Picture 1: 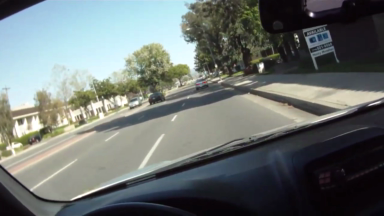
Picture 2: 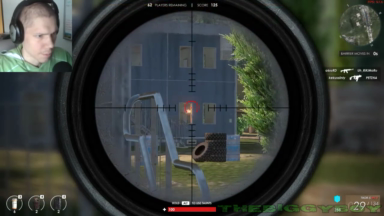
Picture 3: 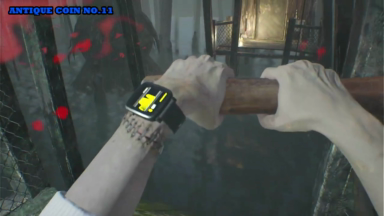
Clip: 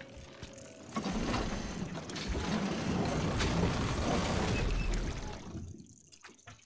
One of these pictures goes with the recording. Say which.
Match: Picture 3